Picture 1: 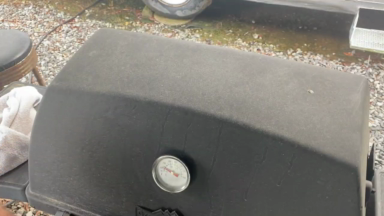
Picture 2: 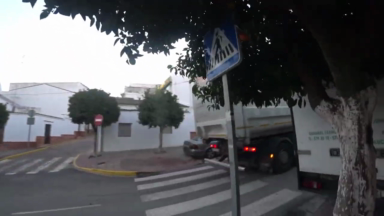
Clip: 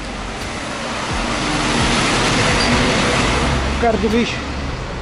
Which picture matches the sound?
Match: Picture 2